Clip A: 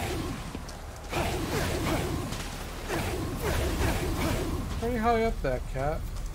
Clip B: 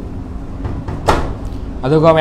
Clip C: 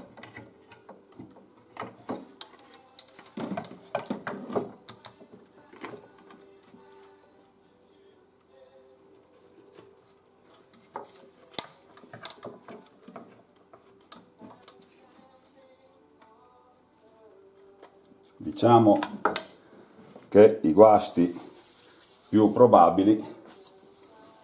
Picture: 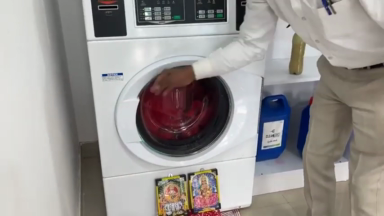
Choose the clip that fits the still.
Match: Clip B